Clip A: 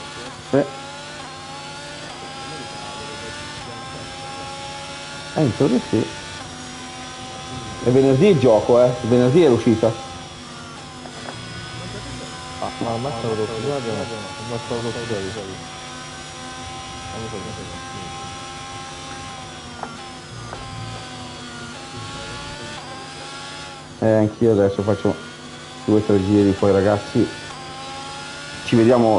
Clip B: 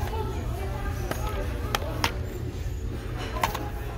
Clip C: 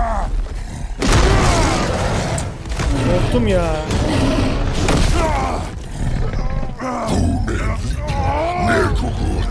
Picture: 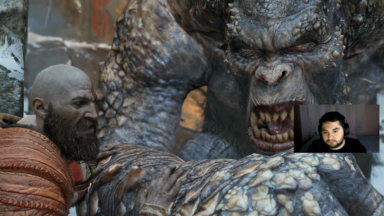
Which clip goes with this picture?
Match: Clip C